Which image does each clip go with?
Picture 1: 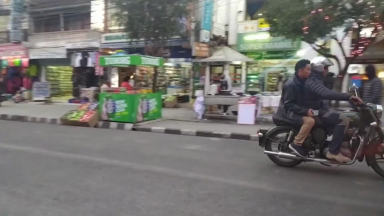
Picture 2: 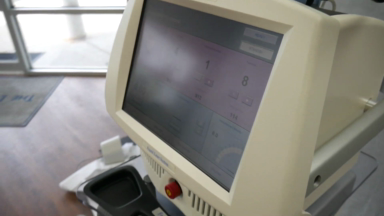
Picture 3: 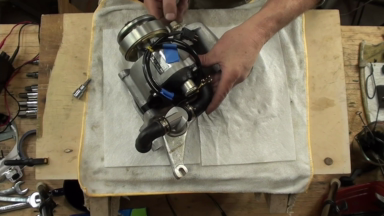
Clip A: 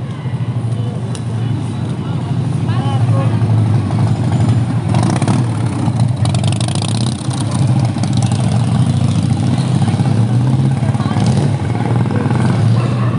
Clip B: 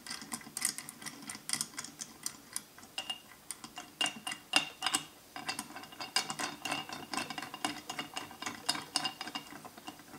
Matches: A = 1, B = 3